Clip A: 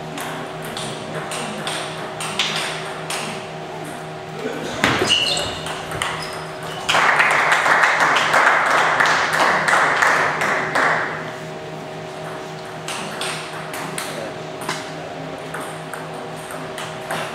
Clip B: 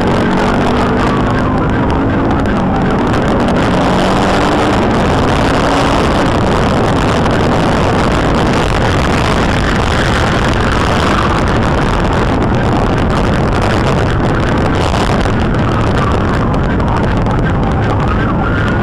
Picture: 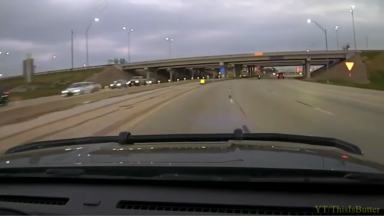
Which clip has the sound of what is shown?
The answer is B